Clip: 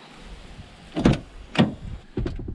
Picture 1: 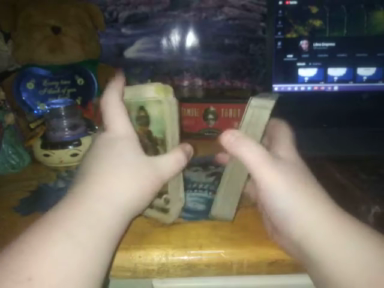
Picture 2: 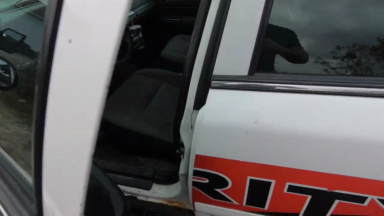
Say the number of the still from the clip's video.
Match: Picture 2